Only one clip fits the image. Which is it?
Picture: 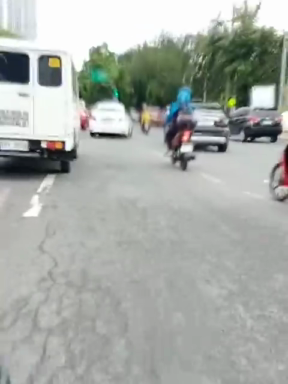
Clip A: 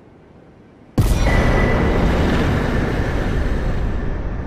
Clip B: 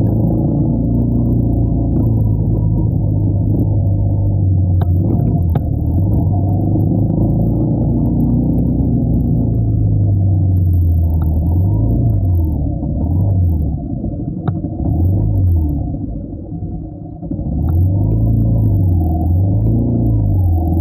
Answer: B